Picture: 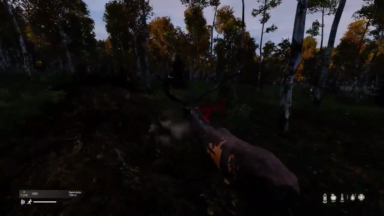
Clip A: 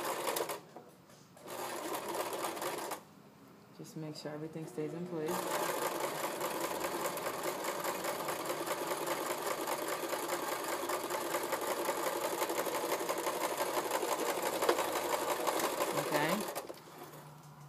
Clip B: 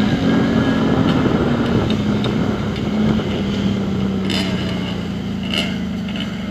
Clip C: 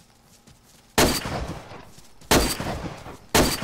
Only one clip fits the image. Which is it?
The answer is C